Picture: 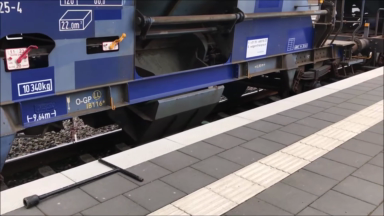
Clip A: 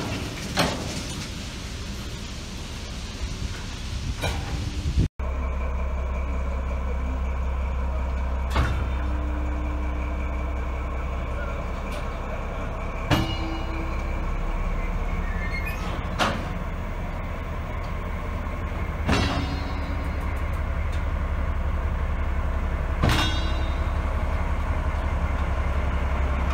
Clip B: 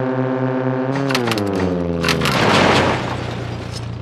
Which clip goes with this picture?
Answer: A